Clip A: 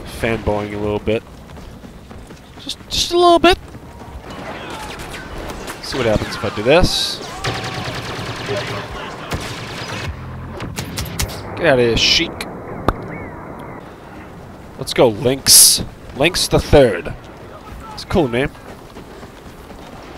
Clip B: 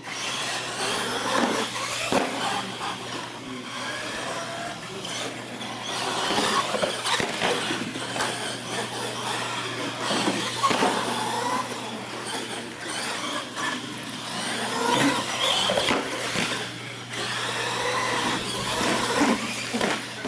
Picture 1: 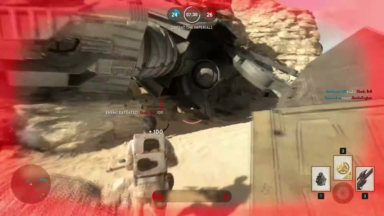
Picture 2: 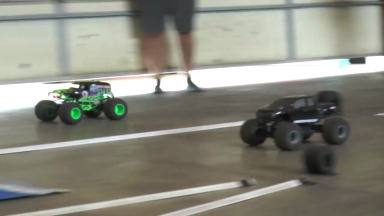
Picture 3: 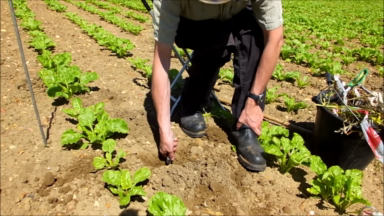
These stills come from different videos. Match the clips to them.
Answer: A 1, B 2